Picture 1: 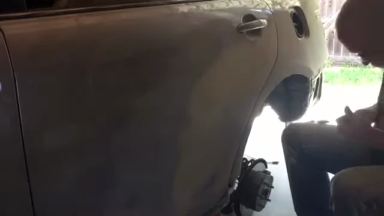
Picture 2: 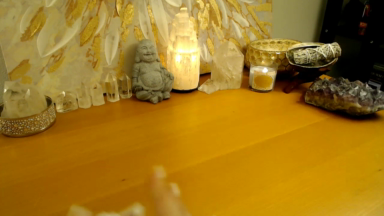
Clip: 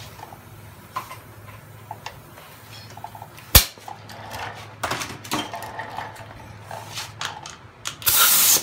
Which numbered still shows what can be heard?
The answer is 1